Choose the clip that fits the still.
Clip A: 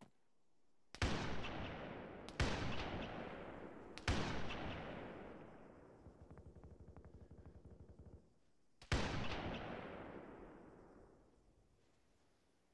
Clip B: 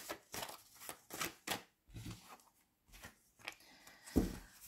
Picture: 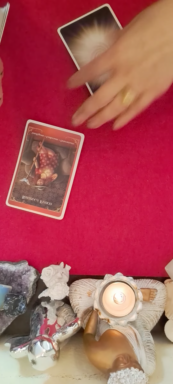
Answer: B